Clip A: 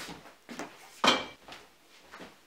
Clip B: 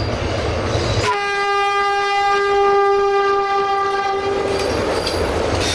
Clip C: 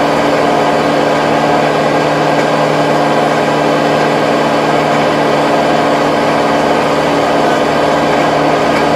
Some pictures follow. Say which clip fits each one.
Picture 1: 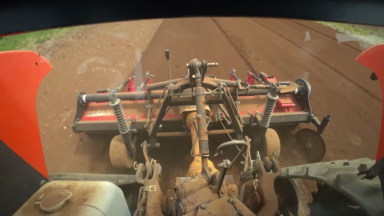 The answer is C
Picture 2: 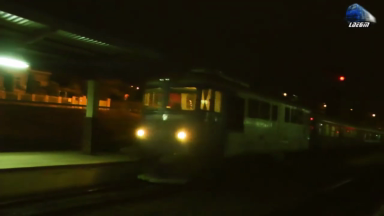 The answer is B